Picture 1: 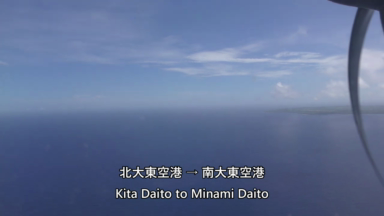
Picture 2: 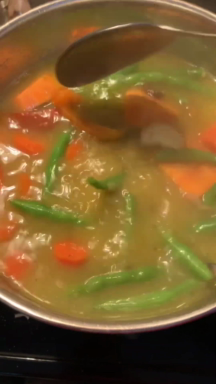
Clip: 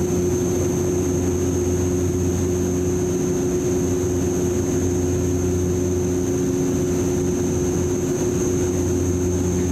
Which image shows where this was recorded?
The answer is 1